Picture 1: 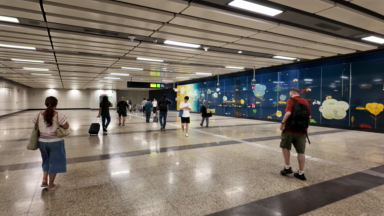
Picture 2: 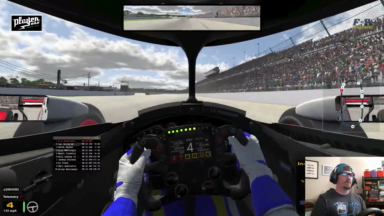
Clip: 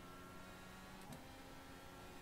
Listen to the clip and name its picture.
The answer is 2